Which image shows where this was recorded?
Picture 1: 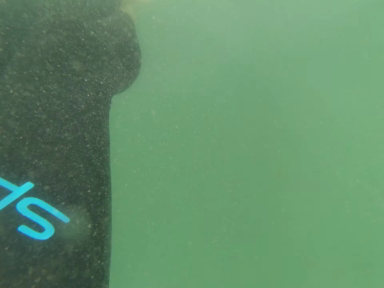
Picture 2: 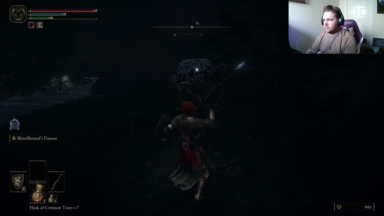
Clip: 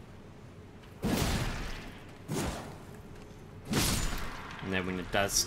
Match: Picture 2